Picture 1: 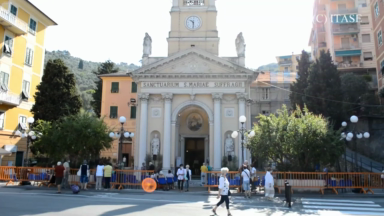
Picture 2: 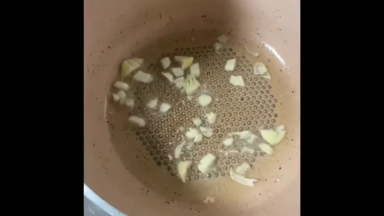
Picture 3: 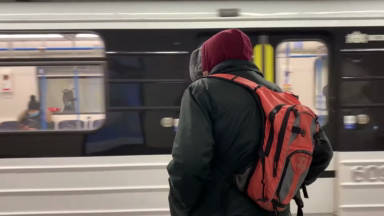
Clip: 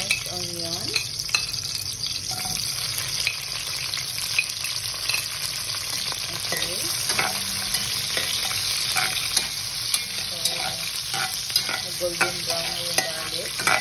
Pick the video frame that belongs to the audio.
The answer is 2